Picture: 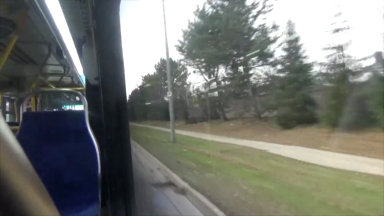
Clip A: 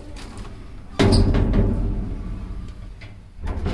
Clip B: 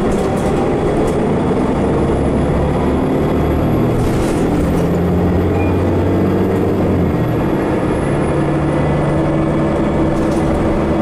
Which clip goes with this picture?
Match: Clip B